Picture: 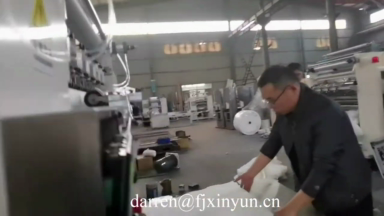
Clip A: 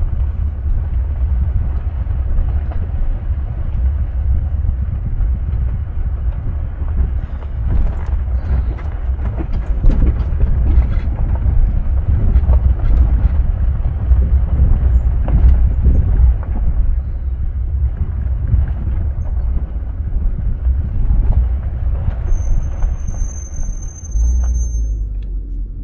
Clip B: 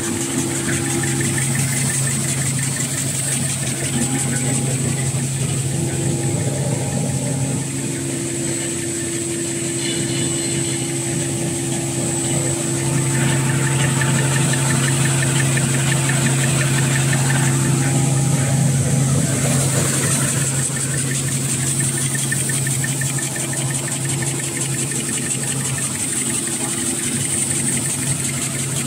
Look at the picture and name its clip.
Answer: B